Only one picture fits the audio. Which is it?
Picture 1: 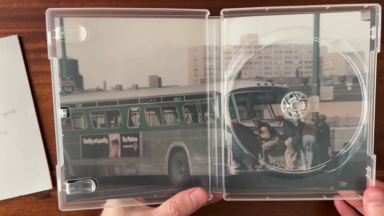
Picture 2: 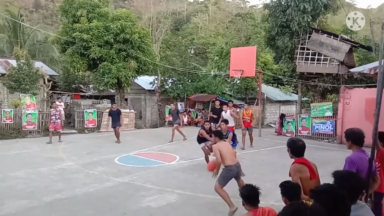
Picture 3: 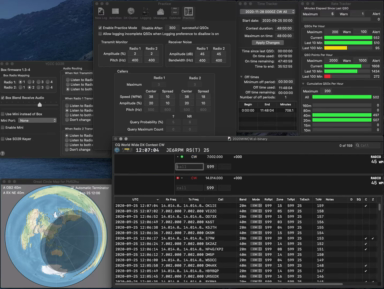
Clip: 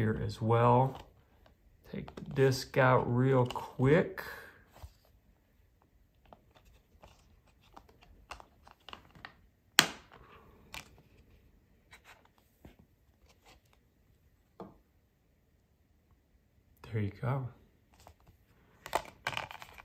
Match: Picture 1